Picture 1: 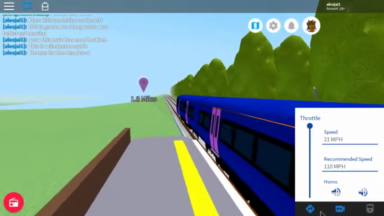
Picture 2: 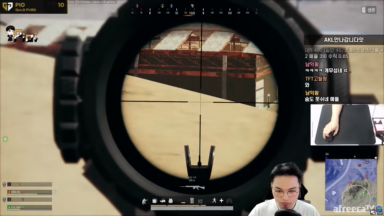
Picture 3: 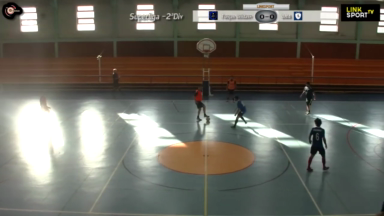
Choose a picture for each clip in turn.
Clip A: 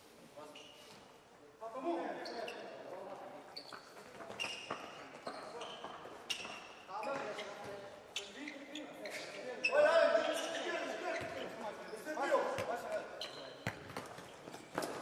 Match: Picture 3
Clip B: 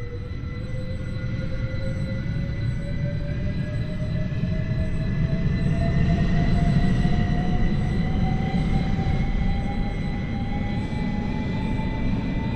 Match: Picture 1